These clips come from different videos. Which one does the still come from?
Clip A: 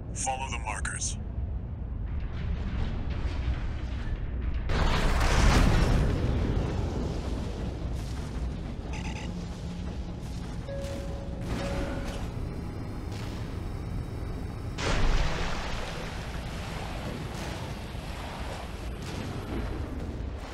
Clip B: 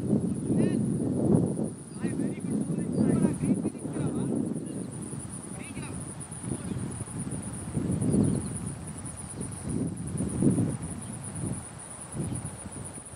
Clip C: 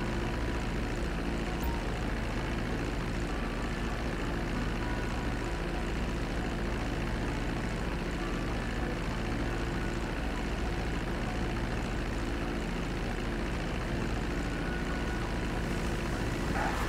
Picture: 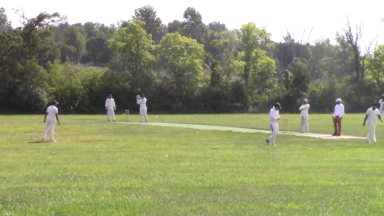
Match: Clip B